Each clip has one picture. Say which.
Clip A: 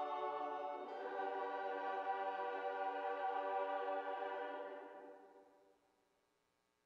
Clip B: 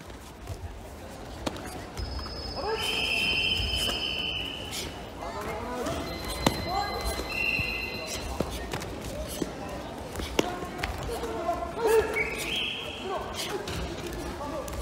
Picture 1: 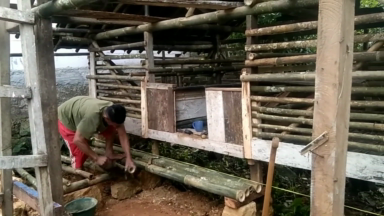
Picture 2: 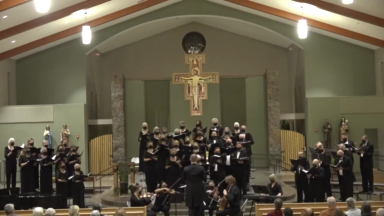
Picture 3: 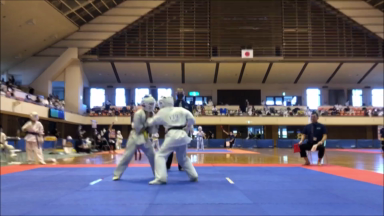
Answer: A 2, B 3